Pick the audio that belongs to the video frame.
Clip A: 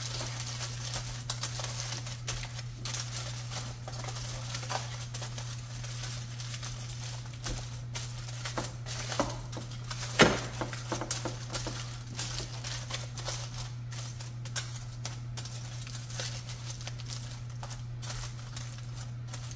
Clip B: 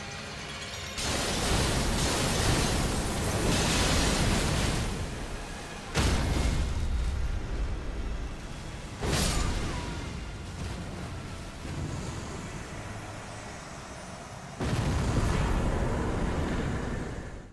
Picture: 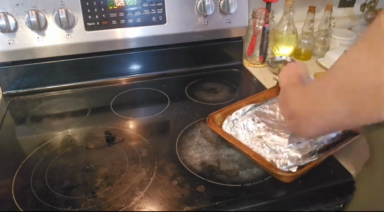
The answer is A